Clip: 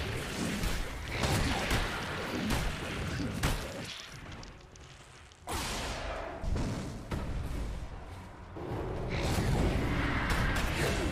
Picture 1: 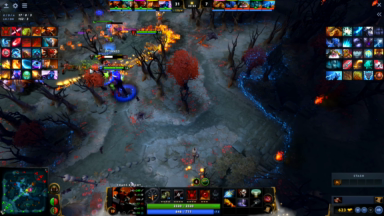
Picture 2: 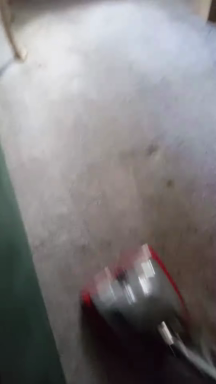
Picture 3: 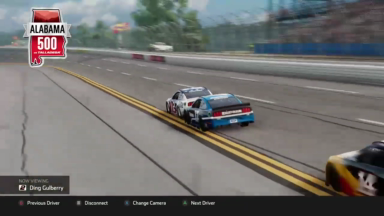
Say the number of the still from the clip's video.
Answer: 1